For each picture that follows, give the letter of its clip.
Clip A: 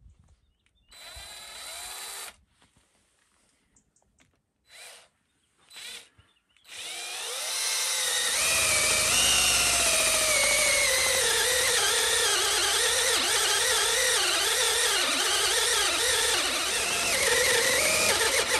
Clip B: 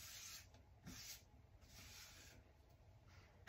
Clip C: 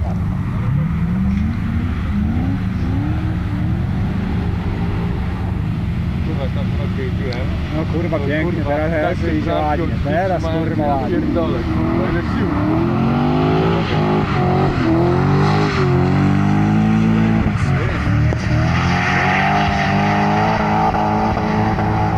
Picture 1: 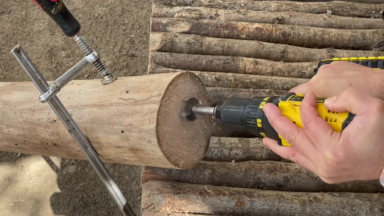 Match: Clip A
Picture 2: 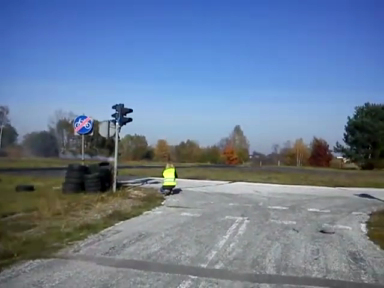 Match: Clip C